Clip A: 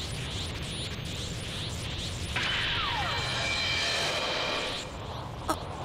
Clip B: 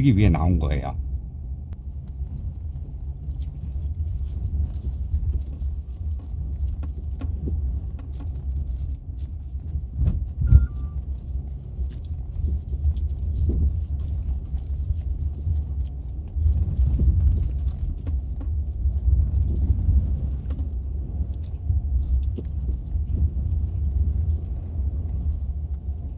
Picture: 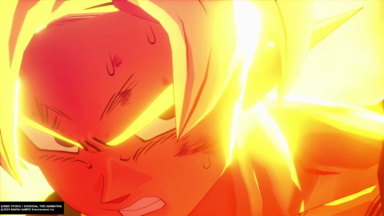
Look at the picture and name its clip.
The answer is A